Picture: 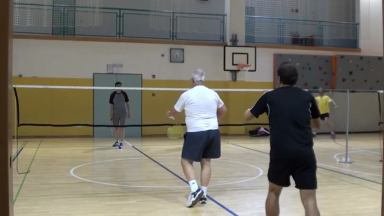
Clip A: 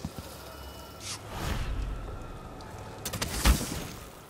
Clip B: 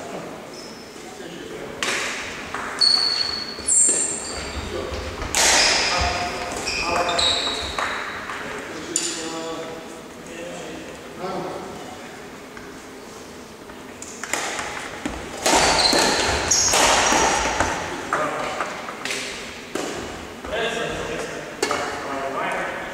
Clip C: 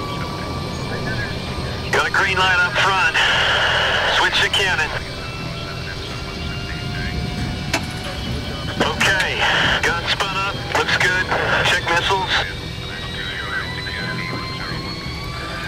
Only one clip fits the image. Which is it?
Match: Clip B